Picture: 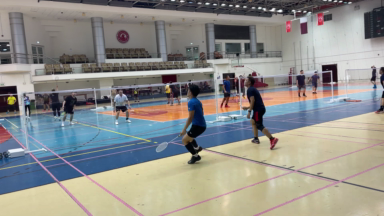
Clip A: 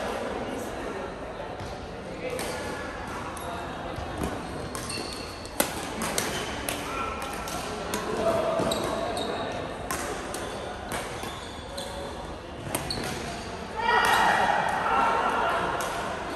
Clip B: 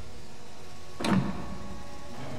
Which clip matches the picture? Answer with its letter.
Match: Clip A